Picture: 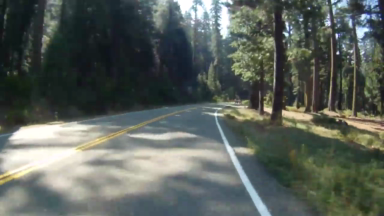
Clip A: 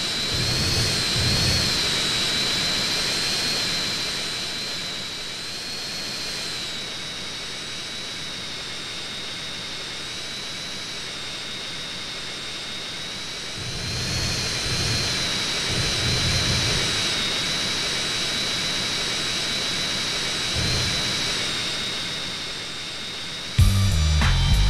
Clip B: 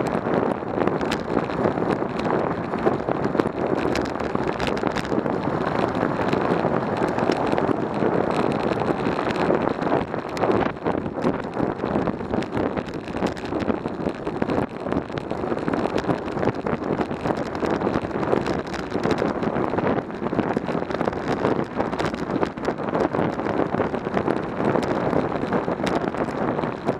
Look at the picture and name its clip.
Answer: B